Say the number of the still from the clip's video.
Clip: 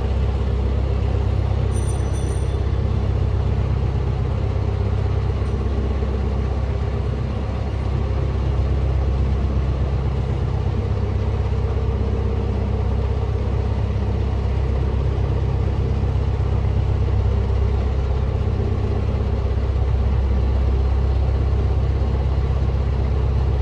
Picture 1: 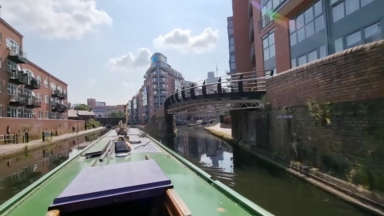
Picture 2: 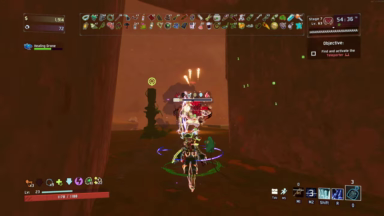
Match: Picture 1